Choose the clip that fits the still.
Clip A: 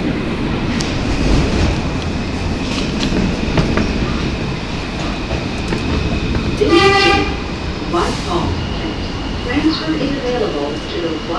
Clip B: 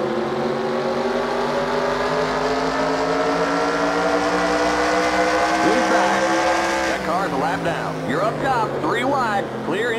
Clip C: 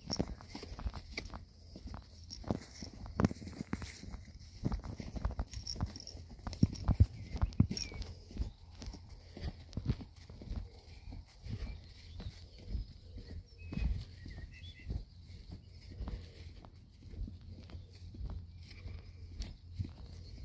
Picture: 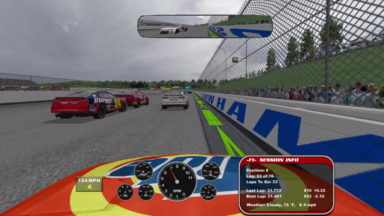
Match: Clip B